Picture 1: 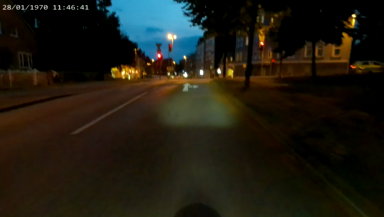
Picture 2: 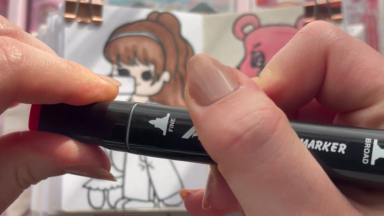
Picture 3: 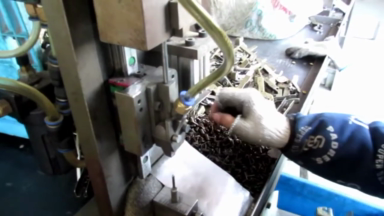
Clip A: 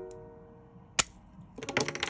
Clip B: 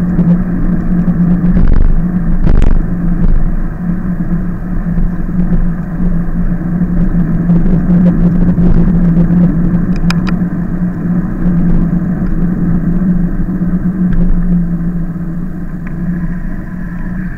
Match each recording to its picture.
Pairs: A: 2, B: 1